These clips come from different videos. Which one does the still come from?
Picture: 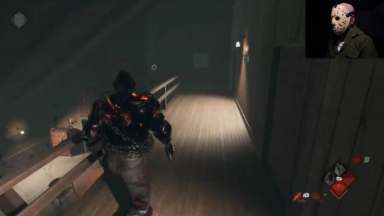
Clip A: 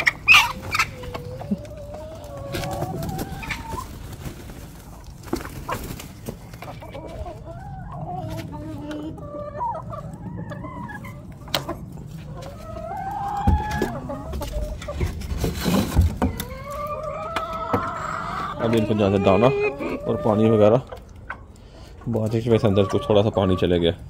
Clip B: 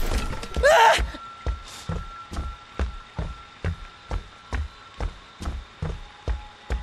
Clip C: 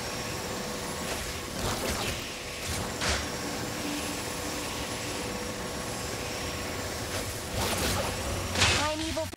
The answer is B